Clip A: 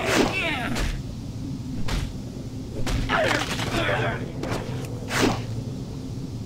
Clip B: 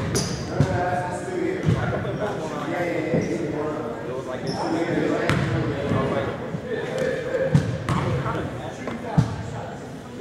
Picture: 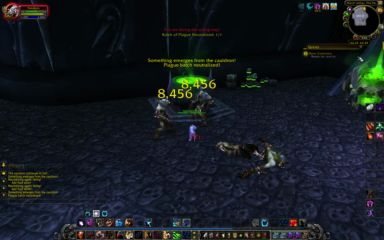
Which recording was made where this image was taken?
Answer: A